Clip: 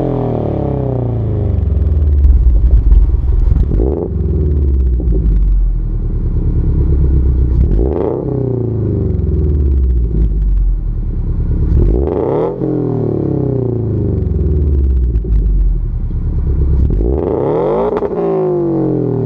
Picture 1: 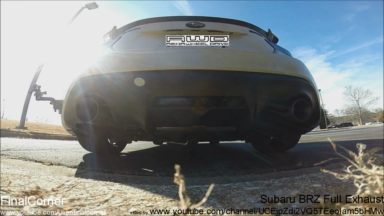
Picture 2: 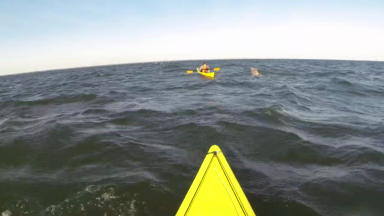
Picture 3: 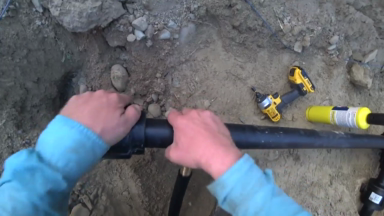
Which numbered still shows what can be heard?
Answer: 1